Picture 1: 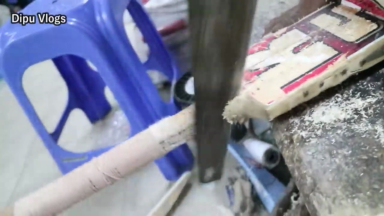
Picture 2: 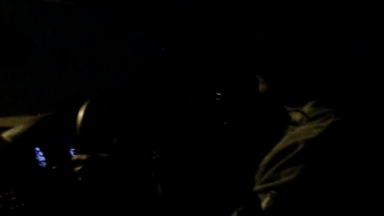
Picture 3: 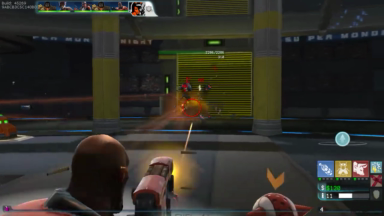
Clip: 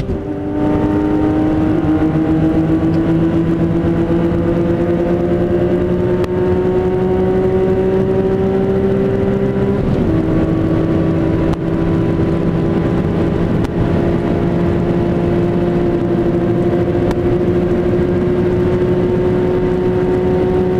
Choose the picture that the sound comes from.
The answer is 2